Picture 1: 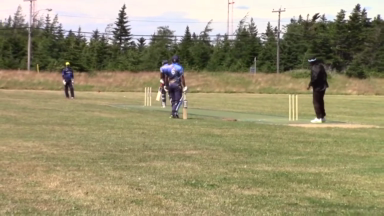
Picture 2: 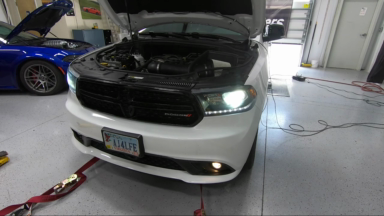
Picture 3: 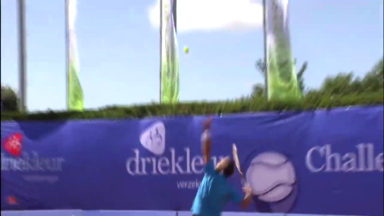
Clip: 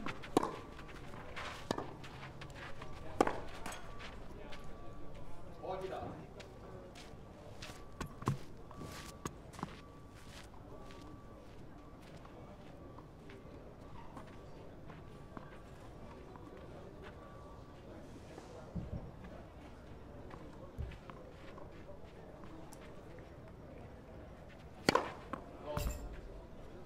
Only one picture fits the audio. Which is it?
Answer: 3